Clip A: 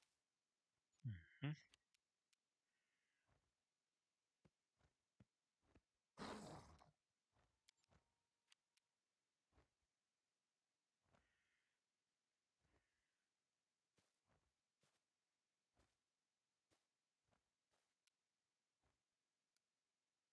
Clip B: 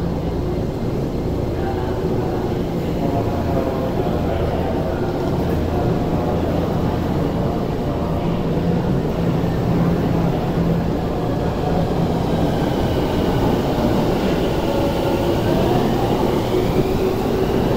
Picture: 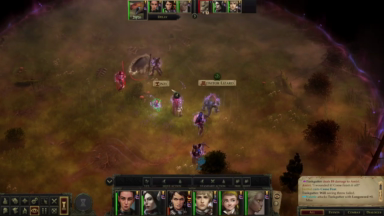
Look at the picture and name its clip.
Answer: A